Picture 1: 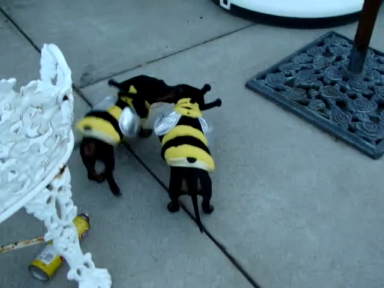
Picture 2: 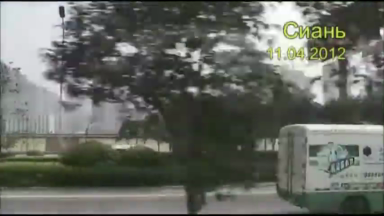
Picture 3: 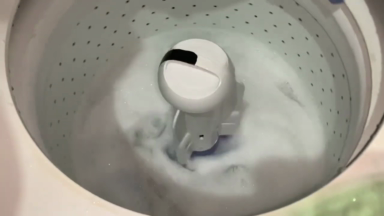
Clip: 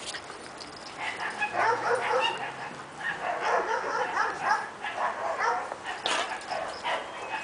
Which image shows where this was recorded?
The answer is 1